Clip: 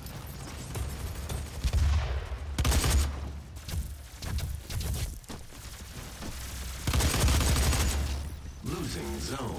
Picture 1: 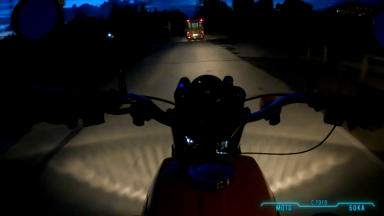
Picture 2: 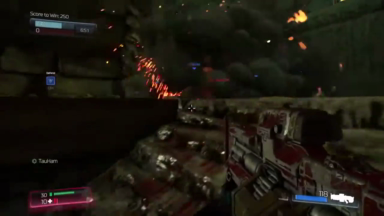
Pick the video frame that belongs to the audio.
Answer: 2